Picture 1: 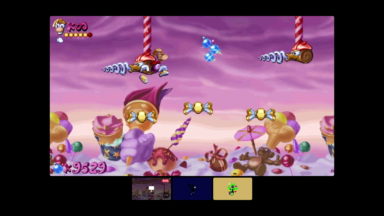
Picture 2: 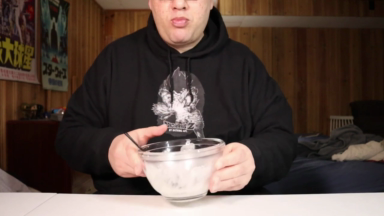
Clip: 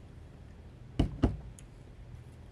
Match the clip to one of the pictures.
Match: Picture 2